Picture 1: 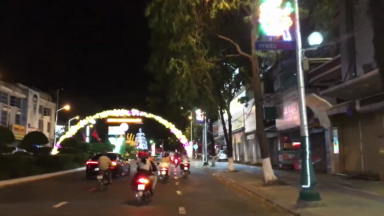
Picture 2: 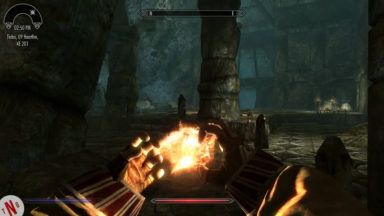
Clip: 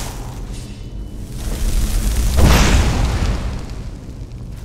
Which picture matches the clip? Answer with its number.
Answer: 2